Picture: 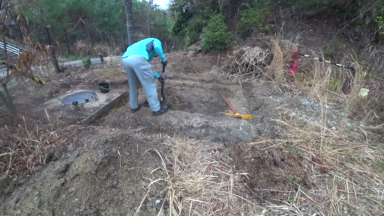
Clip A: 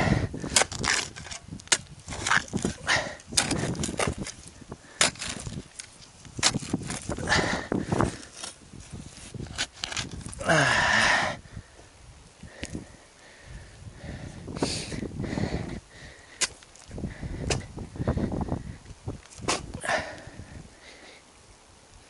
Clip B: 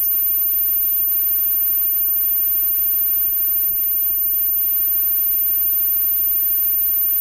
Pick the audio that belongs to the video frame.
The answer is A